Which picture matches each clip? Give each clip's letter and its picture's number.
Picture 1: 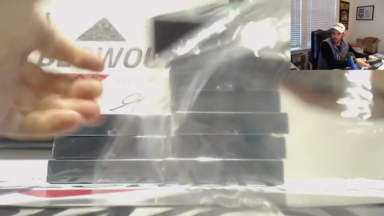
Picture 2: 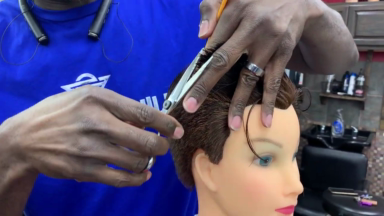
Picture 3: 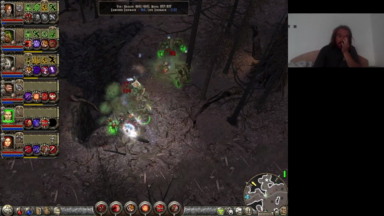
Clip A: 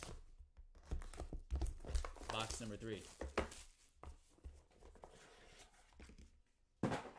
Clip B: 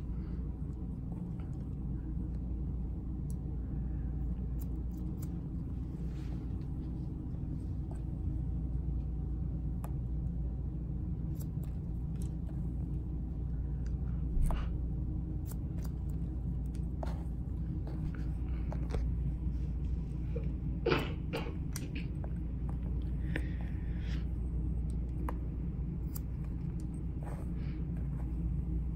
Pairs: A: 1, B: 2